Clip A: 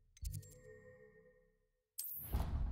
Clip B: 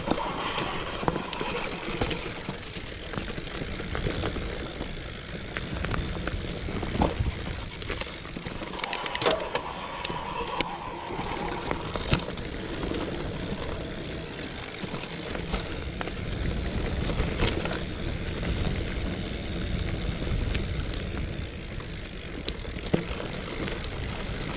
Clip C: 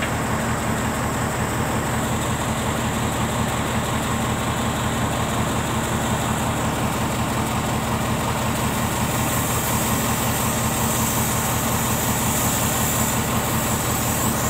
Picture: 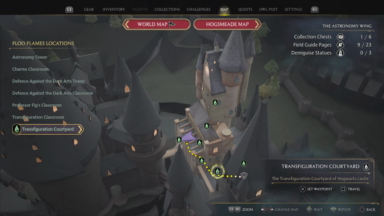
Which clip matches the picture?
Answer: A